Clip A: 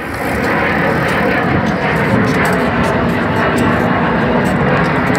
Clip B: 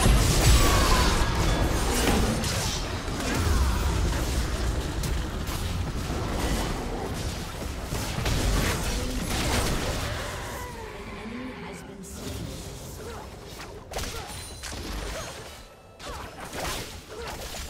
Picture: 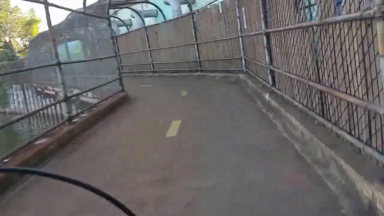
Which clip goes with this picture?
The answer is A